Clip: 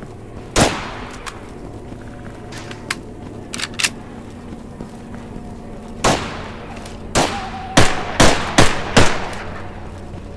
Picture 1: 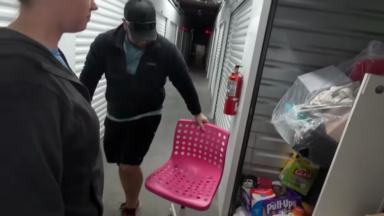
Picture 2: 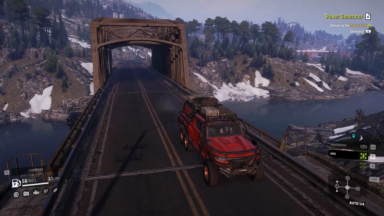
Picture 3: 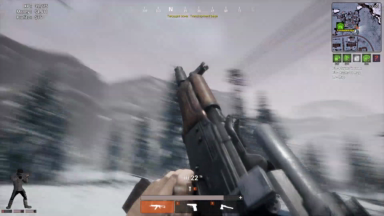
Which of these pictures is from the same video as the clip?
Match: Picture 3